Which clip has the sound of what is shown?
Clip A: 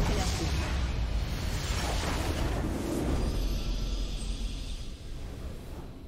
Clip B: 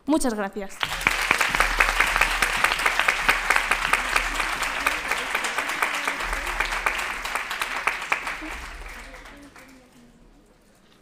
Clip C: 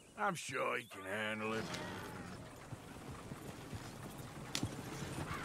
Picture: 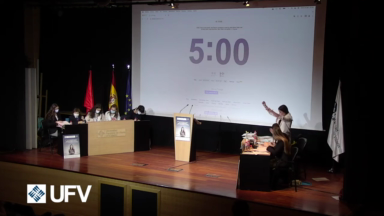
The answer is B